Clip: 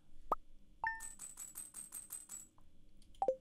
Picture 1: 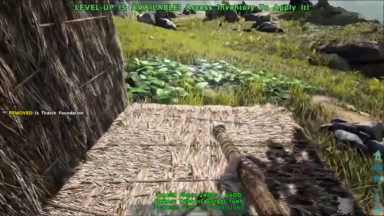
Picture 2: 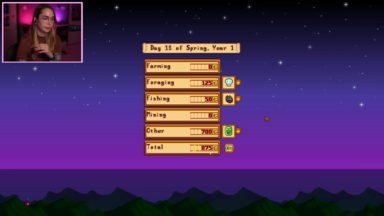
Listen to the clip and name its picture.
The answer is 2